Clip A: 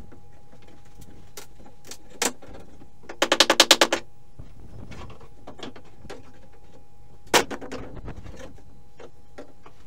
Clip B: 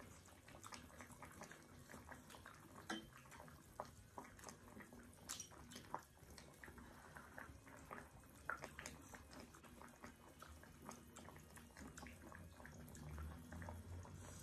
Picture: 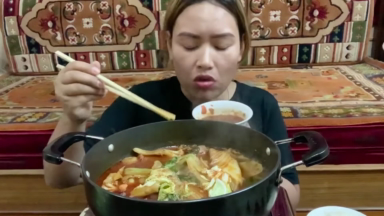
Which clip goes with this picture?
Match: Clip B